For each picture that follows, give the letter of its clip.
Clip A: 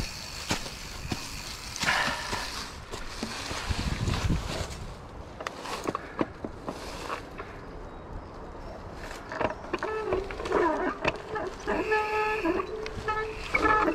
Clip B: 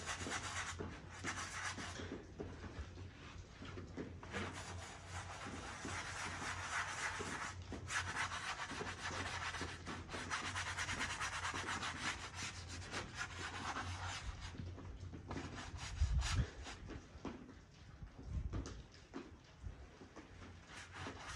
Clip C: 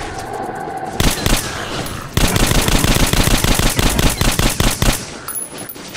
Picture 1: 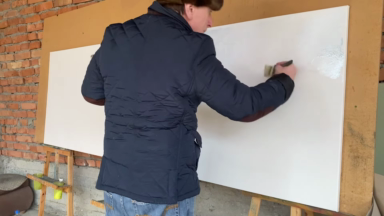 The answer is B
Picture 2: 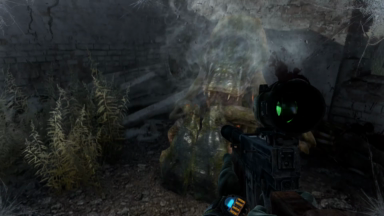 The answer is C